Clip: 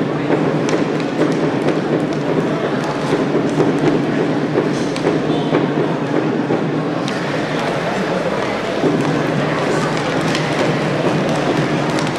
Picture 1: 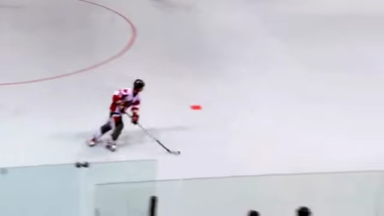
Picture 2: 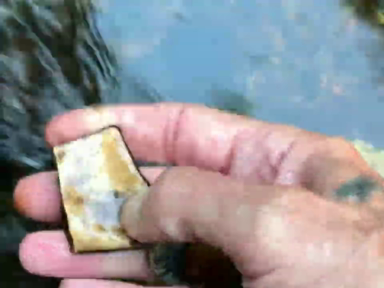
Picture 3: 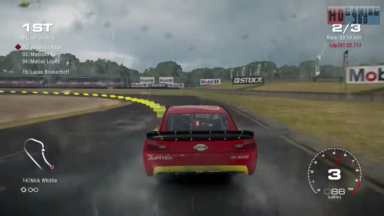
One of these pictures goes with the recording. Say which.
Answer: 1